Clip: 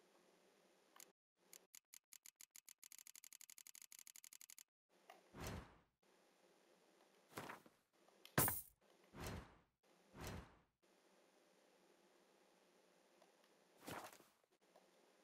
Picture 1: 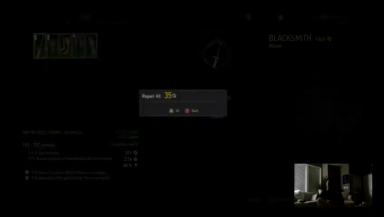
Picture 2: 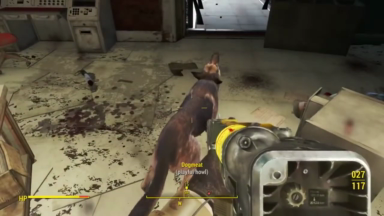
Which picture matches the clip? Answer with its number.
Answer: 1